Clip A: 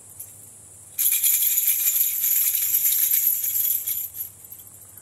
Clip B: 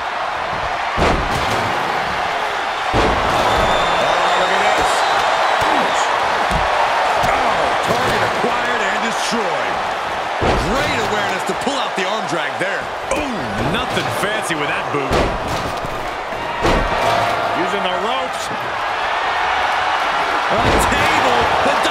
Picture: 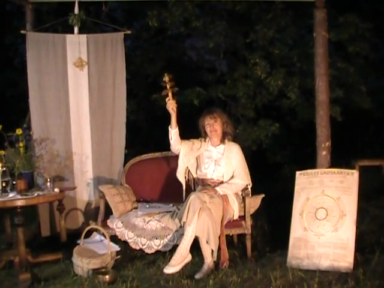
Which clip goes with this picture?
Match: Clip A